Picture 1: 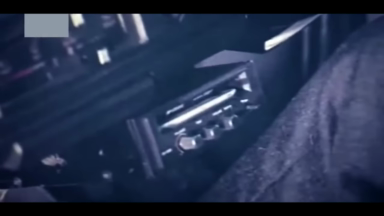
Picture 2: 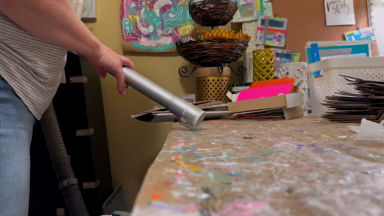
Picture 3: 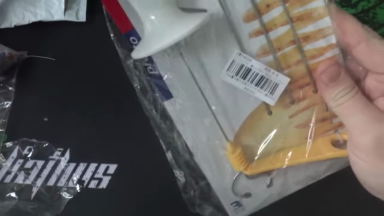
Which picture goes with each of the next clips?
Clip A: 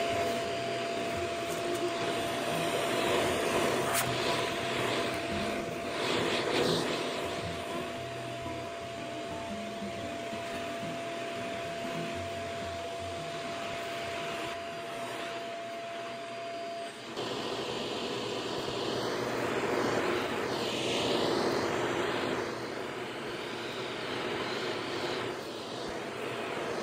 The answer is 2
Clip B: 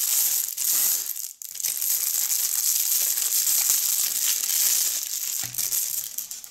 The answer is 3